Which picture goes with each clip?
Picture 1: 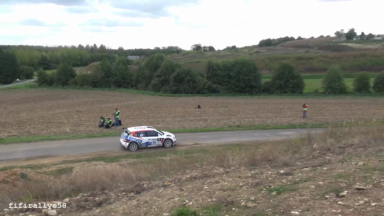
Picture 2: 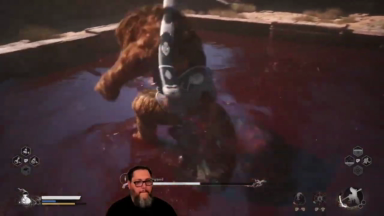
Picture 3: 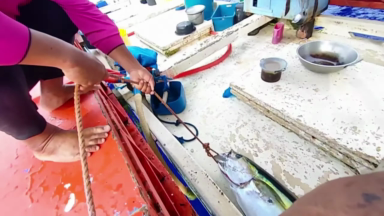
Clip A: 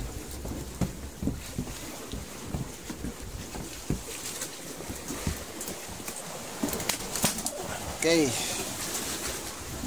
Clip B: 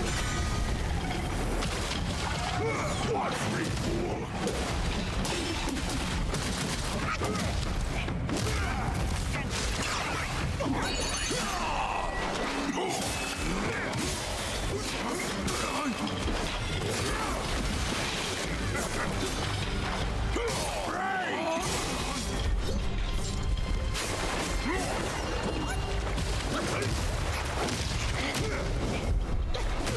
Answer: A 3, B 2